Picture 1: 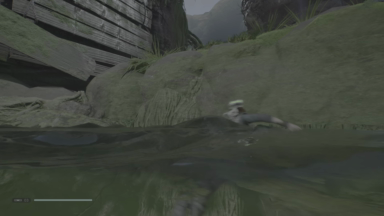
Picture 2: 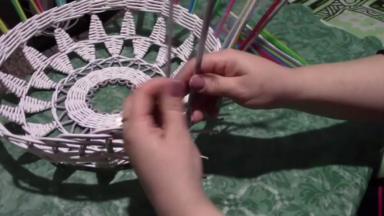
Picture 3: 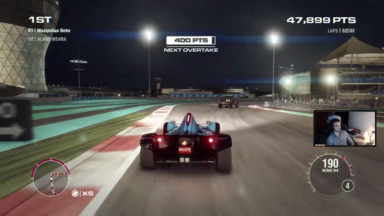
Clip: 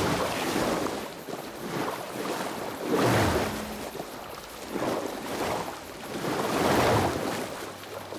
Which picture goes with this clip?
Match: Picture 1